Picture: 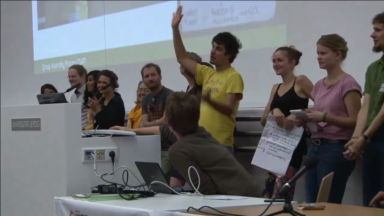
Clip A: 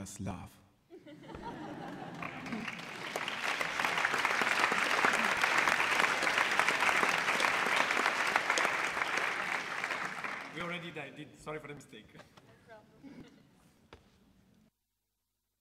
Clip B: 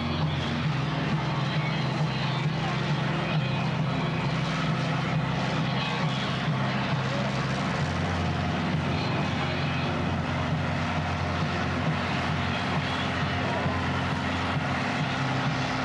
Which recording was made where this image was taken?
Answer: A